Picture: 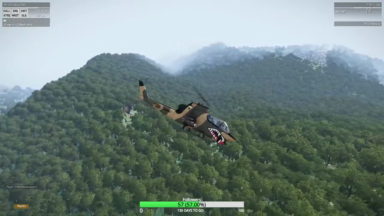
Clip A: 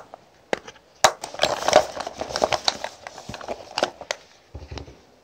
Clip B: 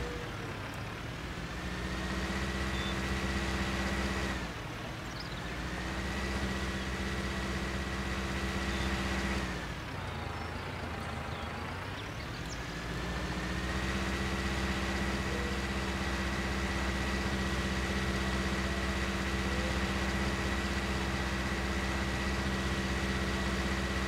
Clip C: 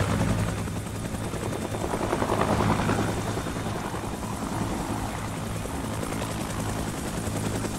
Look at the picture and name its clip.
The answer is C